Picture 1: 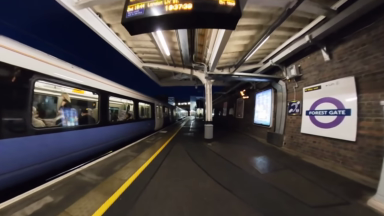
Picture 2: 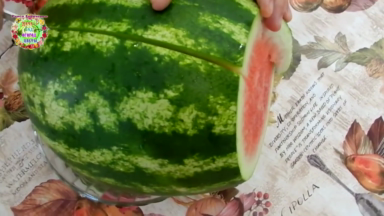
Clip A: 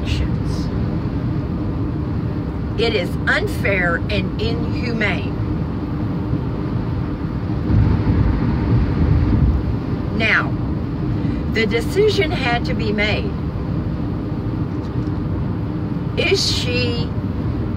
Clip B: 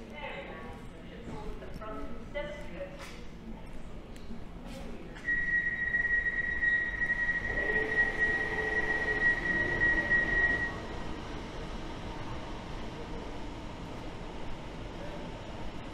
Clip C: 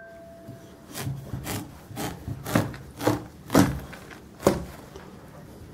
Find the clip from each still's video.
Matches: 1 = B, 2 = C